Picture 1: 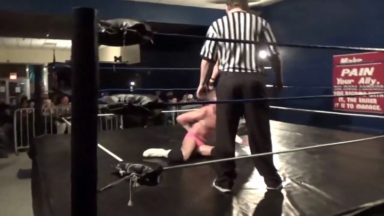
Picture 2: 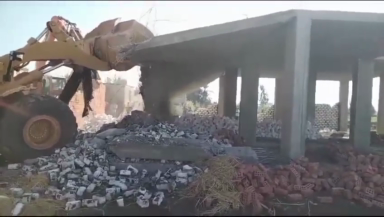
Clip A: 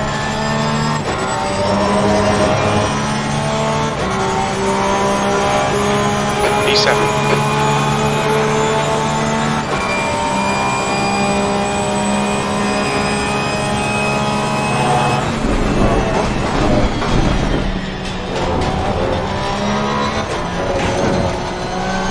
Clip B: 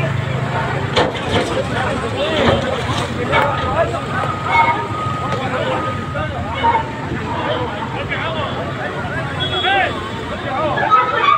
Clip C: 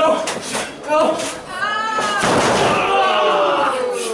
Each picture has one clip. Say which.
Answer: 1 C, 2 B